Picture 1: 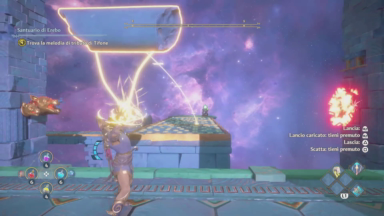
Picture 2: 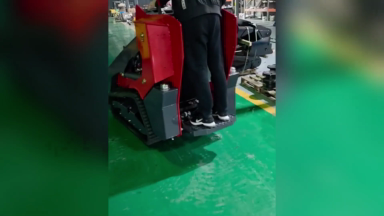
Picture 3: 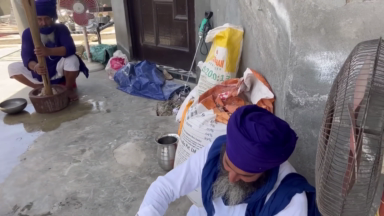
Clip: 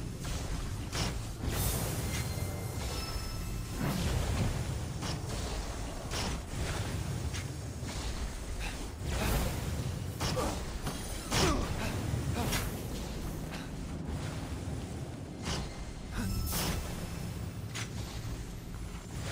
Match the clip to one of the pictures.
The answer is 1